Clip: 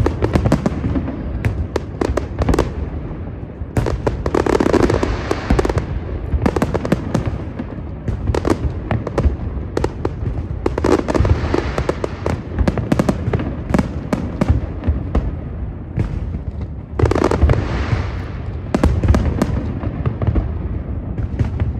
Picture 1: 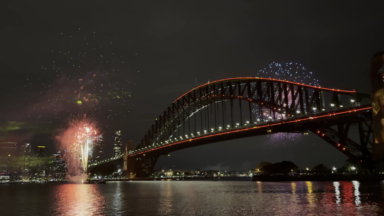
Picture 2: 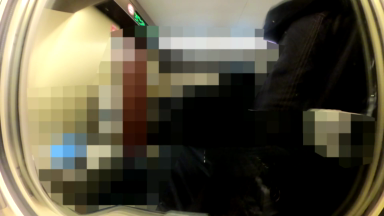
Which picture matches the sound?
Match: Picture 1